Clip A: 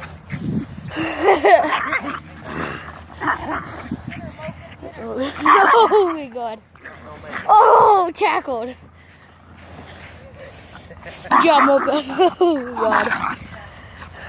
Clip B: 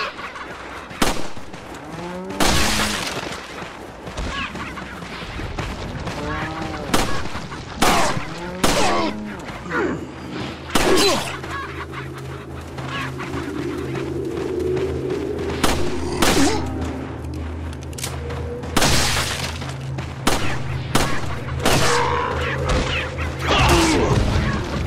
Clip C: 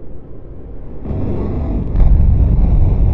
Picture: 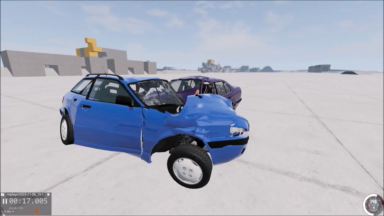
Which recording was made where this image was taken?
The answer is C